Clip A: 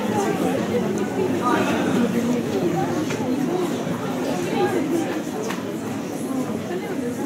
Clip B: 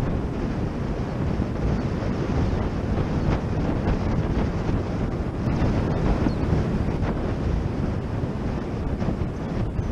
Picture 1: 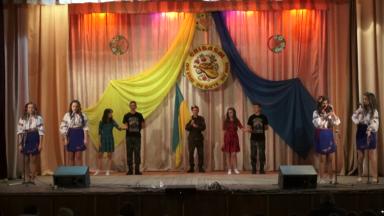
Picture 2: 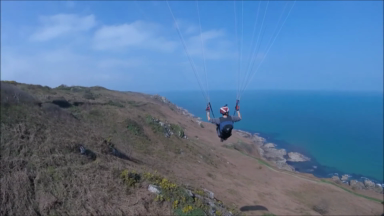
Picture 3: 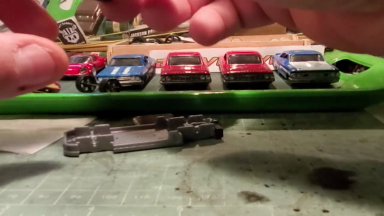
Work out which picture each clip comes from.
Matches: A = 1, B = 2